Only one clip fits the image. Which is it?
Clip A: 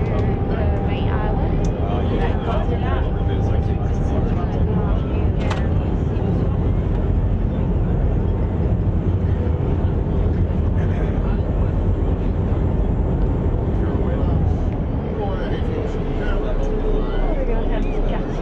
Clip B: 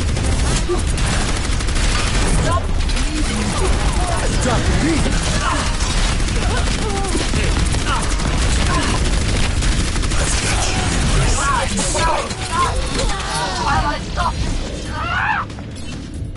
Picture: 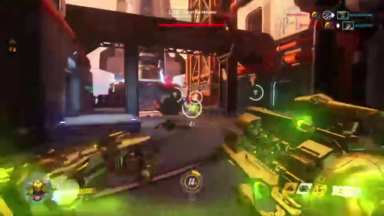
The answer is B